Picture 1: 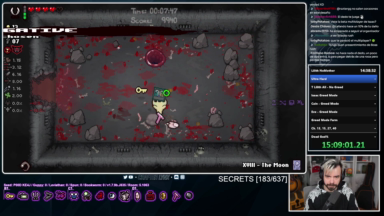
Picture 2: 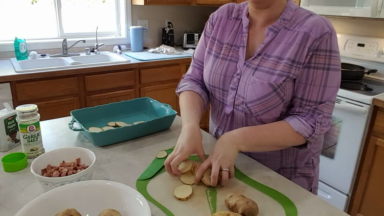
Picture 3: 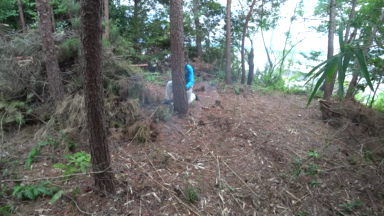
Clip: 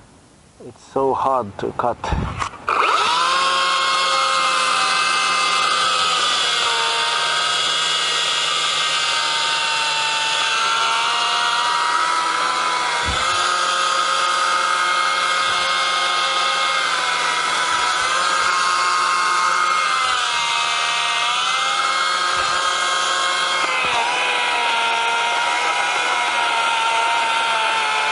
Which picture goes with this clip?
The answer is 3